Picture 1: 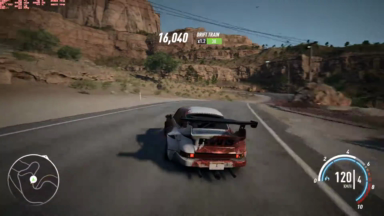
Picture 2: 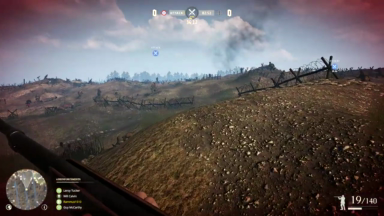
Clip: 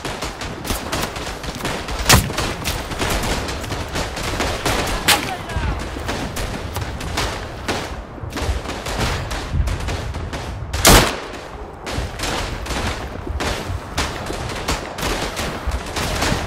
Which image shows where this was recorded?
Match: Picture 2